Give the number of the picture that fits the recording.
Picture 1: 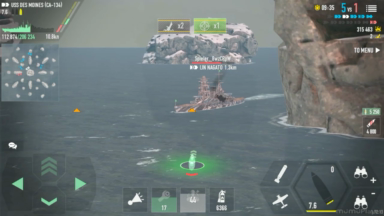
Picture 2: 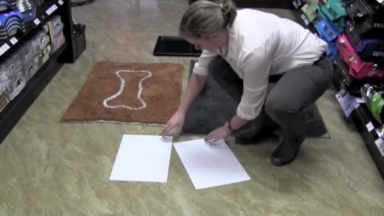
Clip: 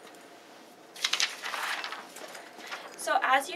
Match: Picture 2